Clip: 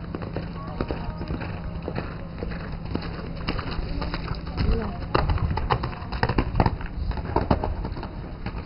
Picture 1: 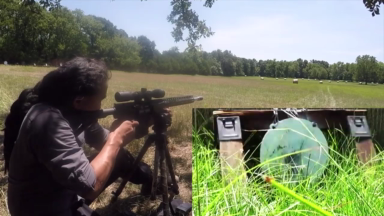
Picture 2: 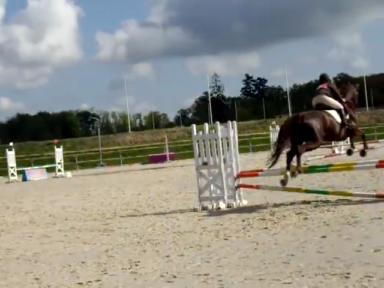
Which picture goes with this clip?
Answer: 2